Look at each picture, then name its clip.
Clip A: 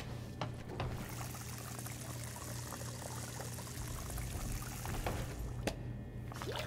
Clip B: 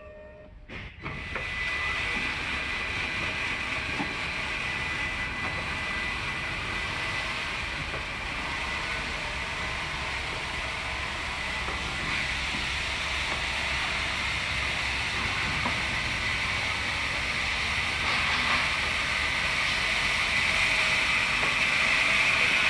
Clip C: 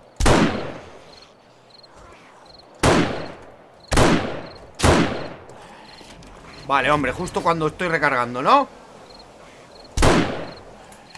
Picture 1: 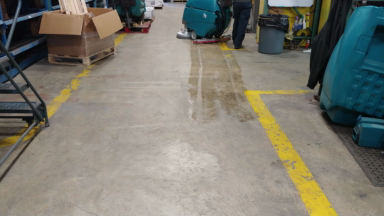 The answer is B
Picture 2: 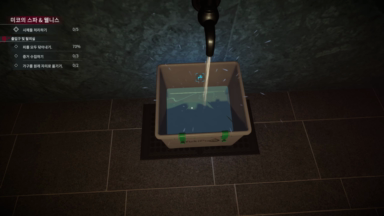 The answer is A